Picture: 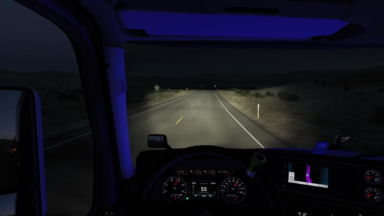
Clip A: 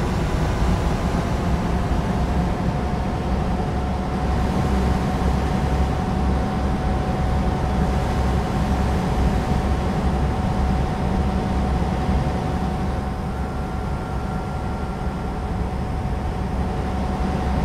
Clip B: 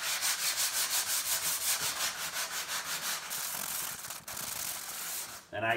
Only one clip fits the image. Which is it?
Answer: A